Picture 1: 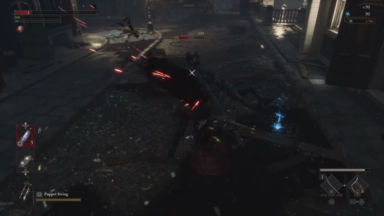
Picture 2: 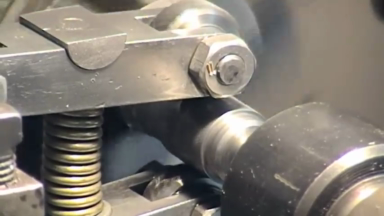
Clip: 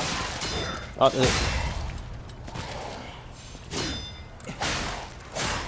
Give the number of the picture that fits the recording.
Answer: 1